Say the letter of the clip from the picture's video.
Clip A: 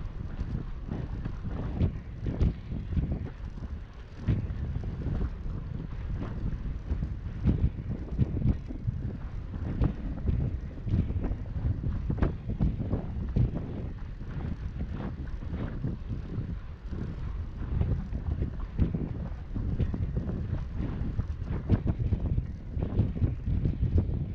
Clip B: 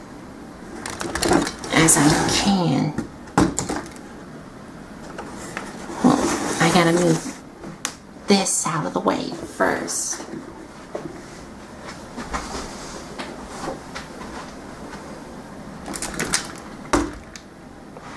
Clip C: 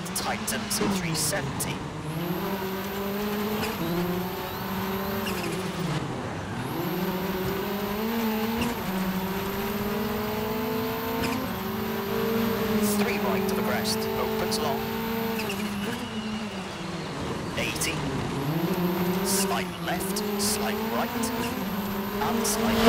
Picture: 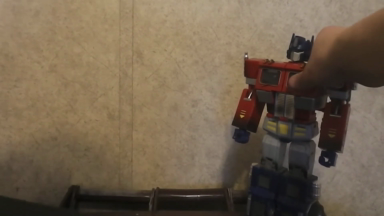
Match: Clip B